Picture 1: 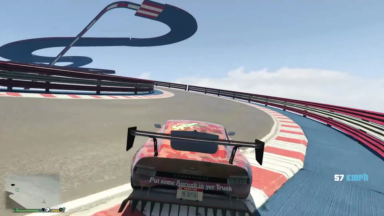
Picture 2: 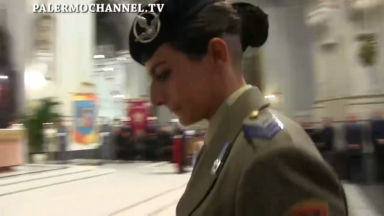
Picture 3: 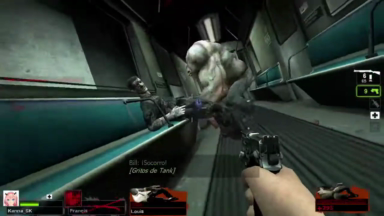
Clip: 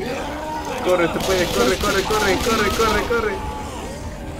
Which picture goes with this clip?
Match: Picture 3